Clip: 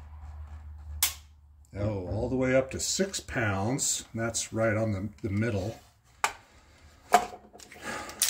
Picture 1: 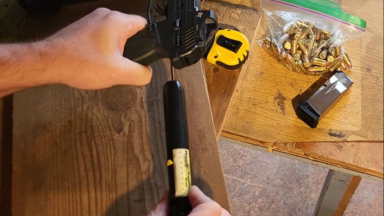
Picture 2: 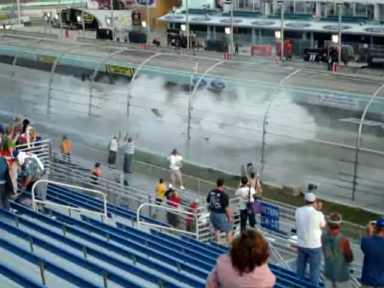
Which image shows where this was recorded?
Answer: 1